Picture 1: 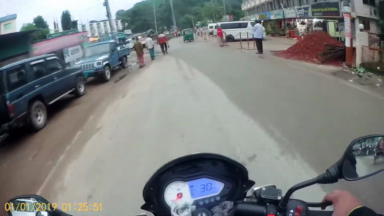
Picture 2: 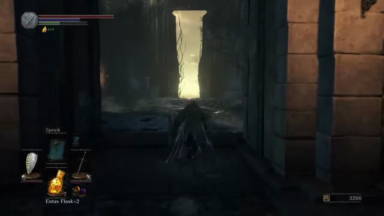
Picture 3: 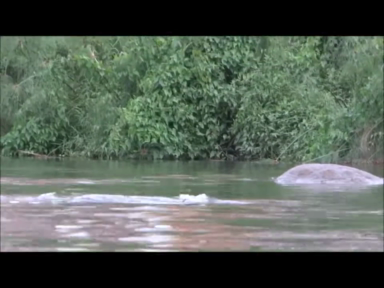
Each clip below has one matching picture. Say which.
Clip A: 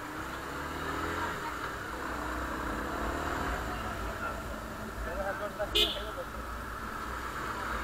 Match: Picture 1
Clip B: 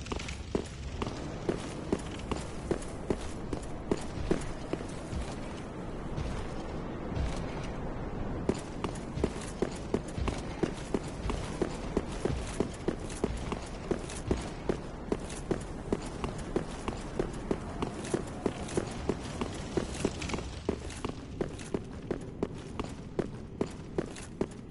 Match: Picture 2